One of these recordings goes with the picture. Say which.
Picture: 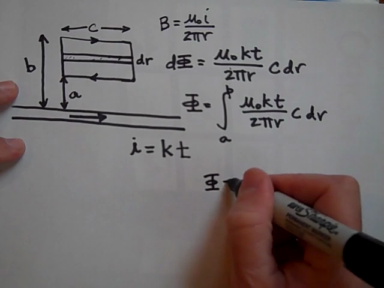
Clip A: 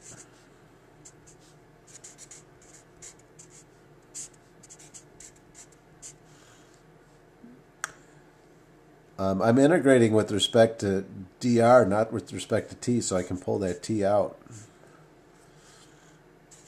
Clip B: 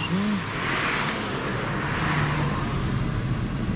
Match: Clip A